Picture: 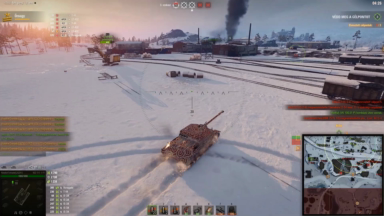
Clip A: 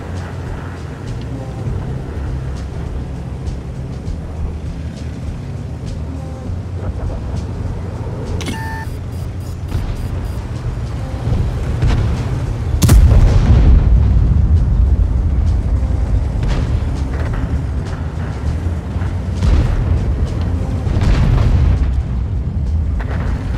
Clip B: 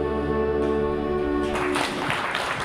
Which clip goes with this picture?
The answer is A